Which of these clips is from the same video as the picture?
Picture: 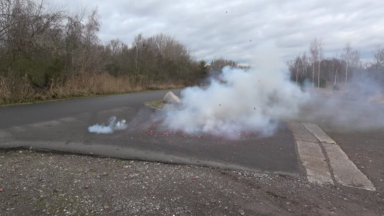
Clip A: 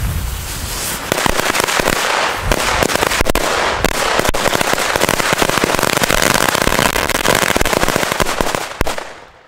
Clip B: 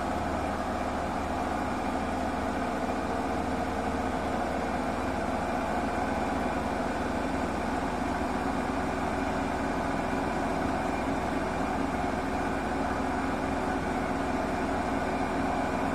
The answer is A